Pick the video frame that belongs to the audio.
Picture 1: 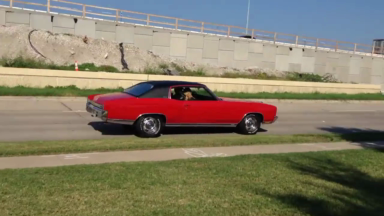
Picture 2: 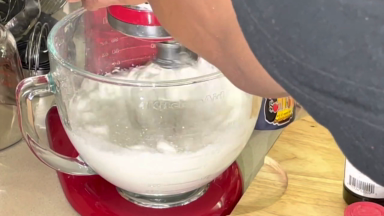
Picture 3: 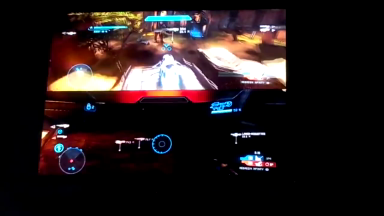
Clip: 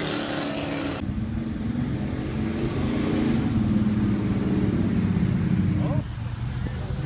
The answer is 1